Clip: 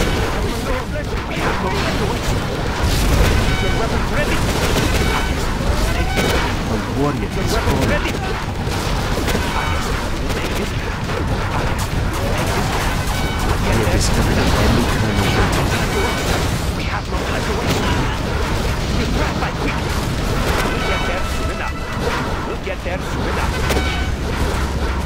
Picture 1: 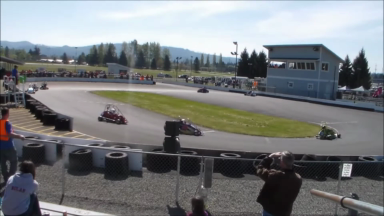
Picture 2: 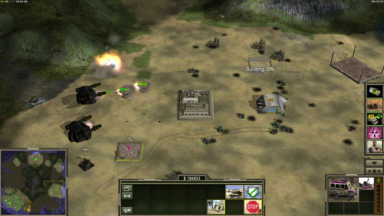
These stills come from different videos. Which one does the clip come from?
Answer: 2